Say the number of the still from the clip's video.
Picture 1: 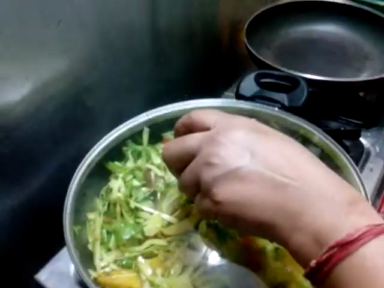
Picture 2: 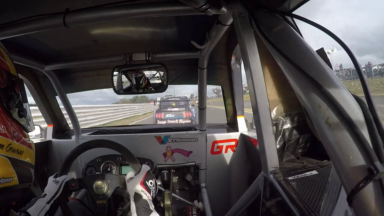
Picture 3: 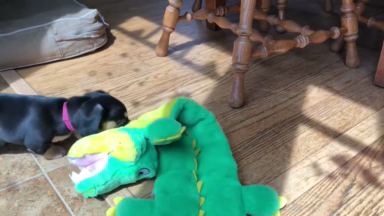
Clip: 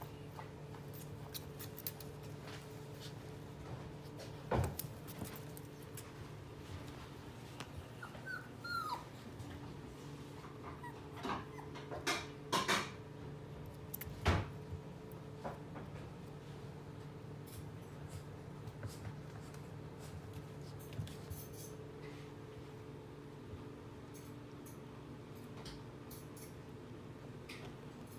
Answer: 3